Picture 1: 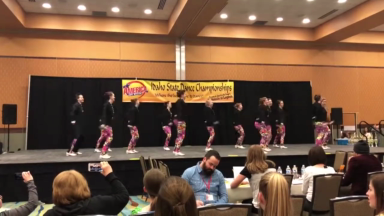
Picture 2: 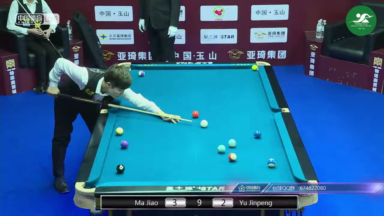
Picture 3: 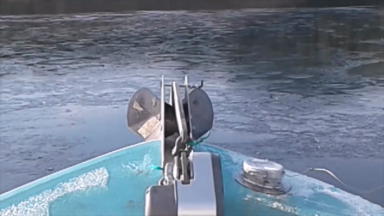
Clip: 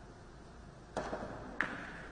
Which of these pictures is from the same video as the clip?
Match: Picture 2